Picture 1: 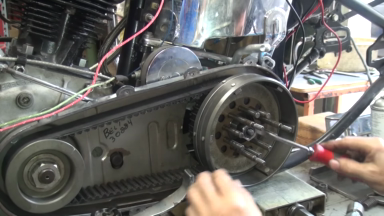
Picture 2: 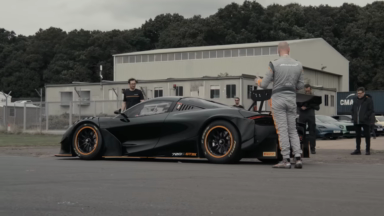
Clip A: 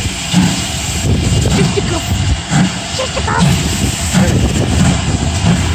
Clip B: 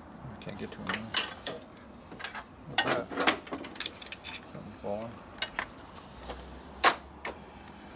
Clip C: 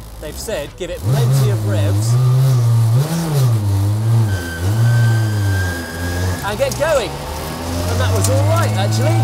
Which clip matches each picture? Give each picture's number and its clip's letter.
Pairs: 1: B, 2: C